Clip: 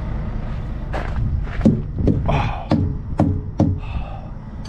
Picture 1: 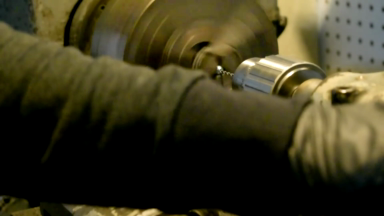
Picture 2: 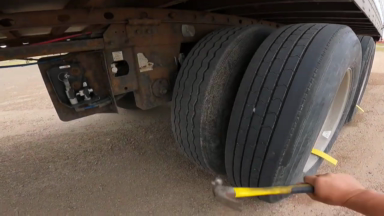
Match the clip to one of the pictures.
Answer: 2